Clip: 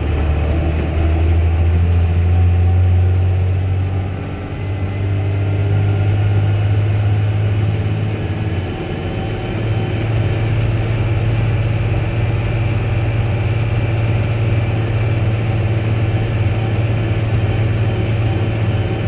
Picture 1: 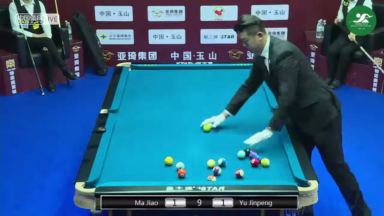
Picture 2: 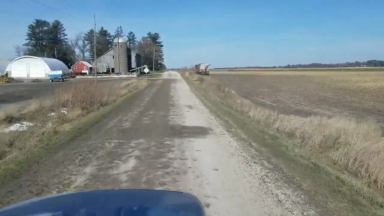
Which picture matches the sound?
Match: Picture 2